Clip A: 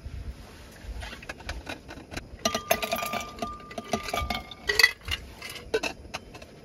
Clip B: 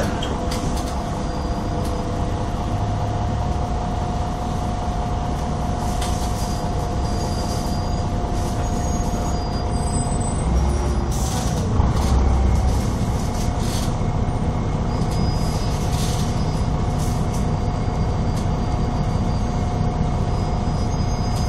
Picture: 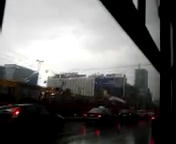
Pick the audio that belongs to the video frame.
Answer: B